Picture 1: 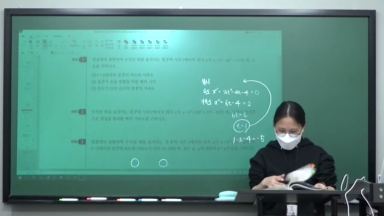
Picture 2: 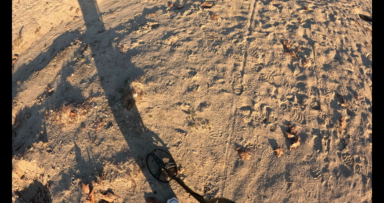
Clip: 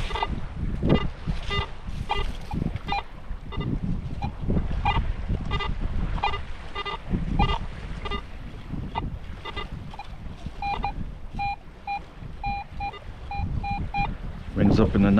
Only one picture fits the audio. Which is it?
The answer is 2